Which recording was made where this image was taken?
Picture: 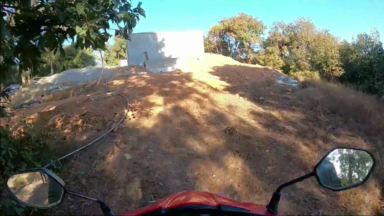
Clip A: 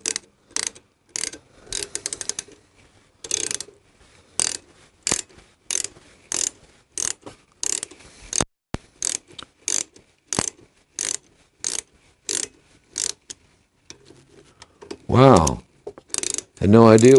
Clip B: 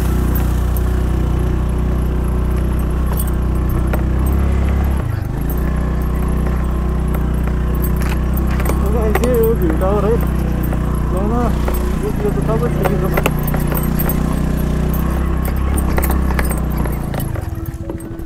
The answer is B